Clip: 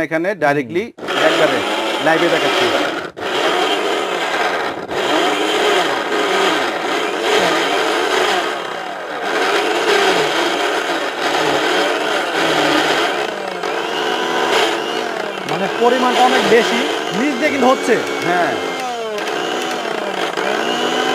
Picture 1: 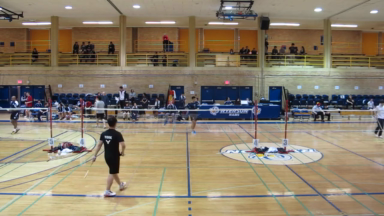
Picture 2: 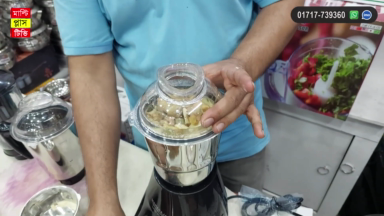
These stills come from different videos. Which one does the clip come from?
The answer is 2